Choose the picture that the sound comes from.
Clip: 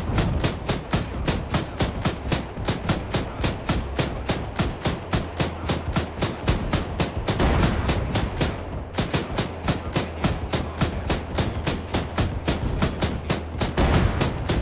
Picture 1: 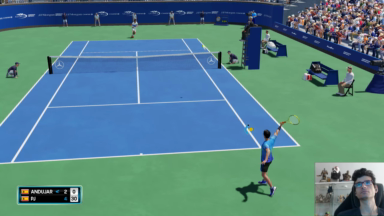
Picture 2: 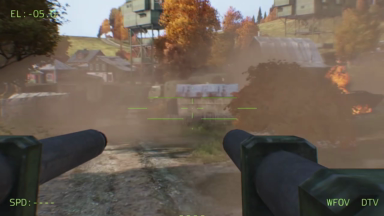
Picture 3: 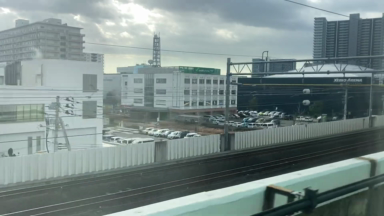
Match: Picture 2